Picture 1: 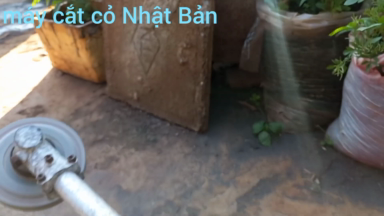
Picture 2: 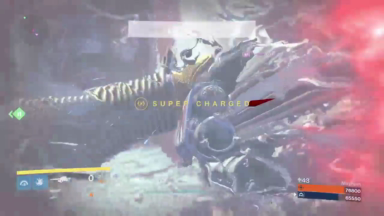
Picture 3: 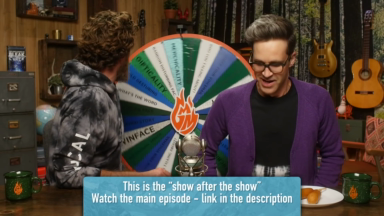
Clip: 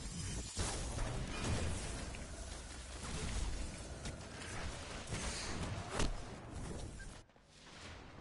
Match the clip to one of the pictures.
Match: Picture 2